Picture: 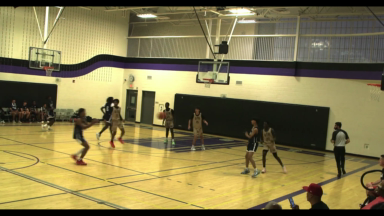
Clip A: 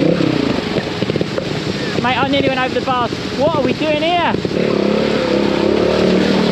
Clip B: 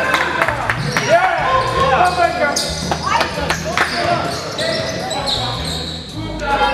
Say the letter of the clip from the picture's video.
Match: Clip B